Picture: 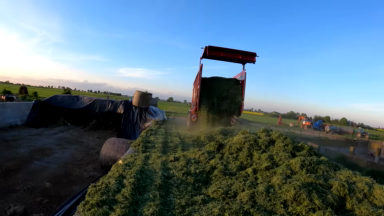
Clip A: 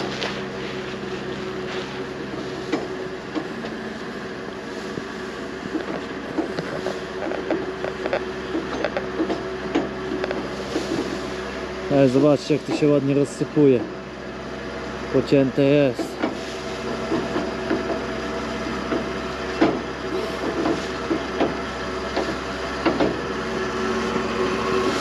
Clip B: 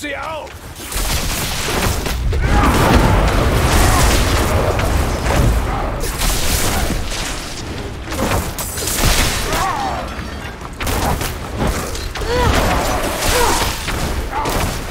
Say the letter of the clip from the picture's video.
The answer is A